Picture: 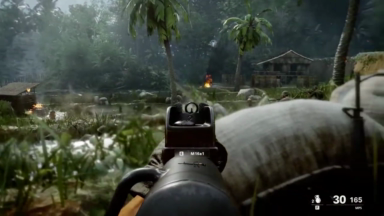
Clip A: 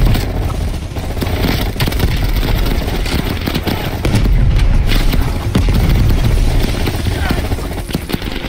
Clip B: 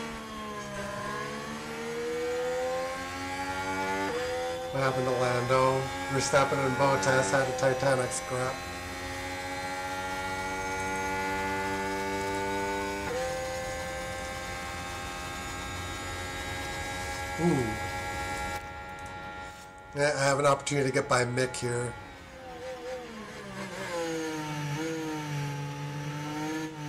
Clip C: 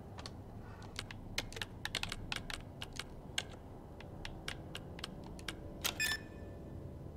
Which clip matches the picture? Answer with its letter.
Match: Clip A